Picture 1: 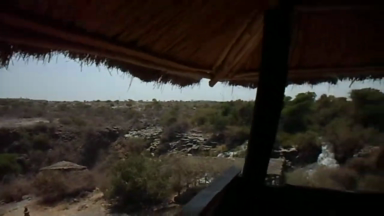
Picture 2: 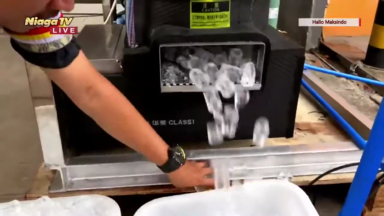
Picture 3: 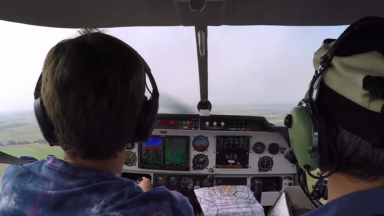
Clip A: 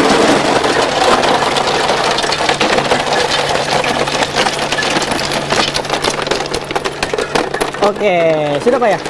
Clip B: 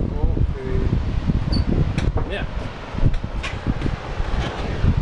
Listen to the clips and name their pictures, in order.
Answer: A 2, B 1